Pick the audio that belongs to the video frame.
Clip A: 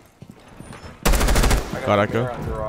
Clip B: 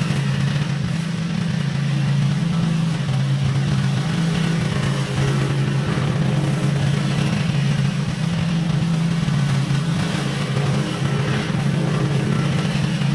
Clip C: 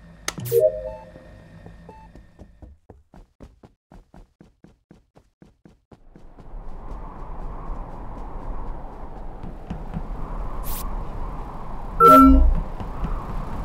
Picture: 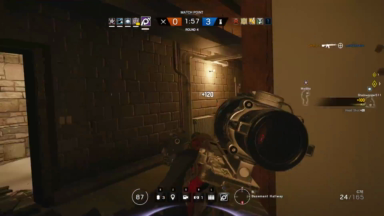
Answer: A